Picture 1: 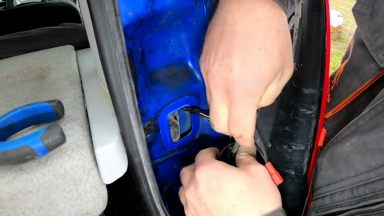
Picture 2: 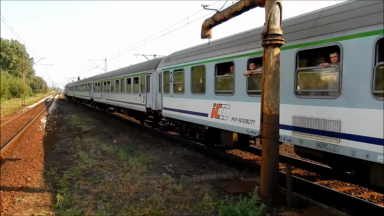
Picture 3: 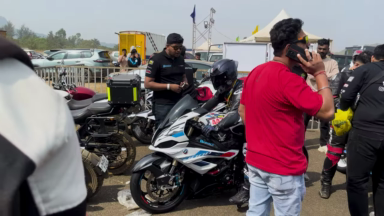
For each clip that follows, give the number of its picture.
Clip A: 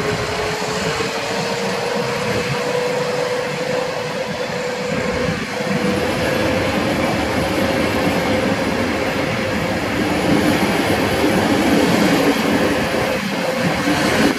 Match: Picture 2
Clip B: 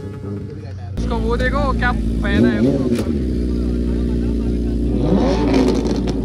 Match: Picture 3